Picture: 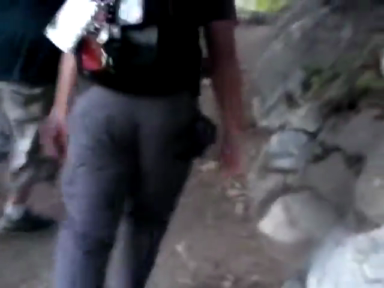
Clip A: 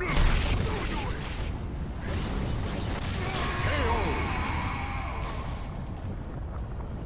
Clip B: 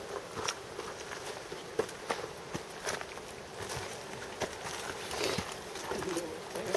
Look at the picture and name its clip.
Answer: B